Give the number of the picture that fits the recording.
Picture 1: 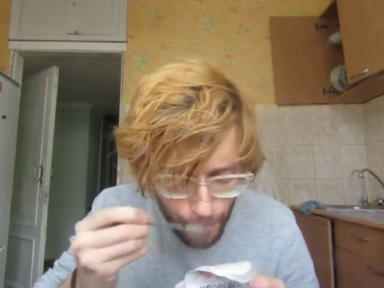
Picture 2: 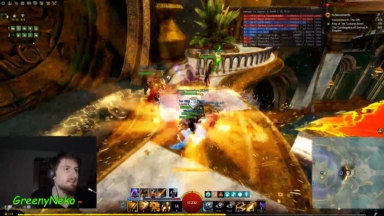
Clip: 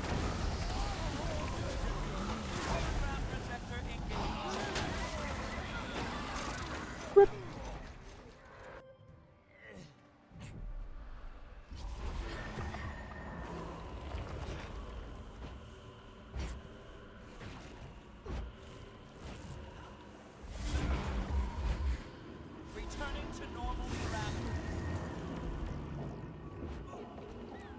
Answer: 2